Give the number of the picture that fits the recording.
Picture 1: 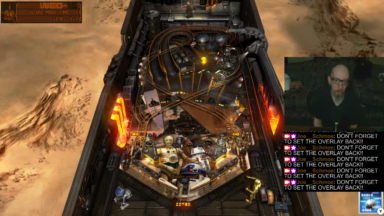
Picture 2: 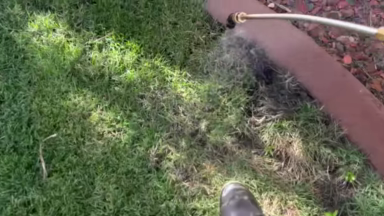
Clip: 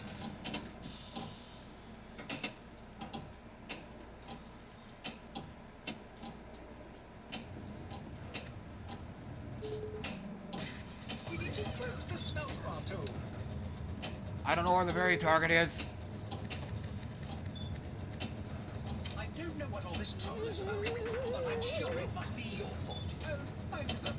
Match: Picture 1